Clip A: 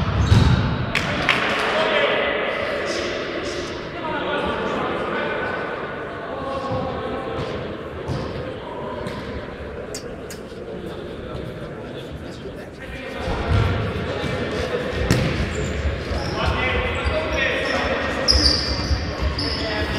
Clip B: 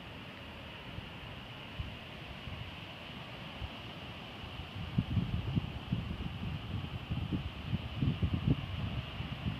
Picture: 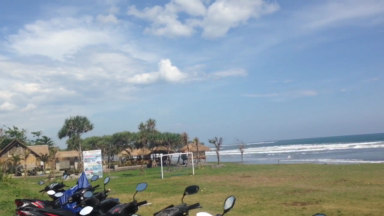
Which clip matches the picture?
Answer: B